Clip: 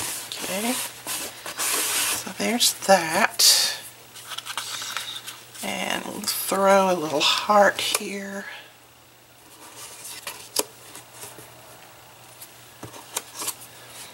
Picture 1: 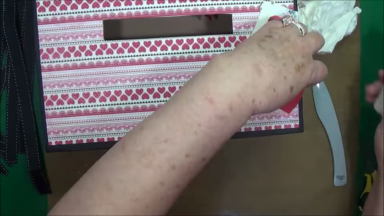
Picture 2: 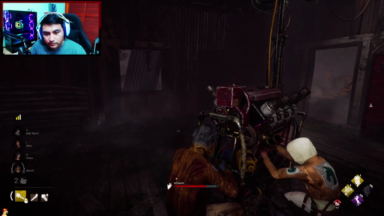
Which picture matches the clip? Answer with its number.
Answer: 1